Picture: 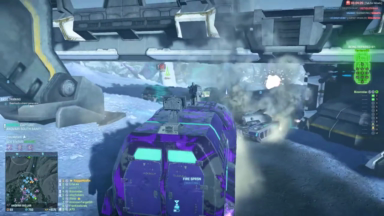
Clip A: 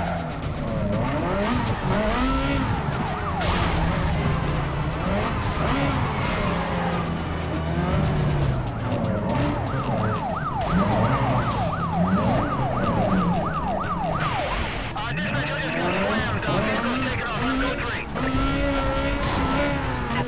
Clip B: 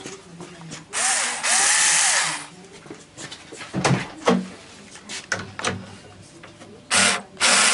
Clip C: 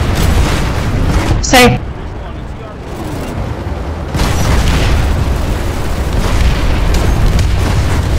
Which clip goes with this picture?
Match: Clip C